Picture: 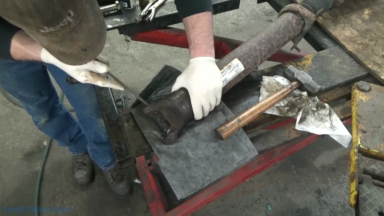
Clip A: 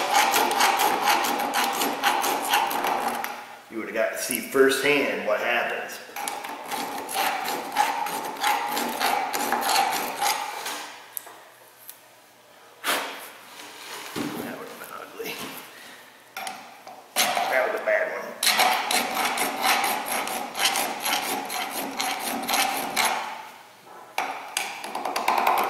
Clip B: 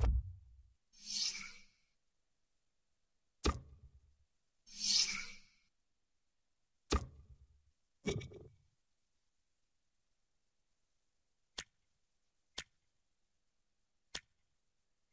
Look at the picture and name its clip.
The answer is A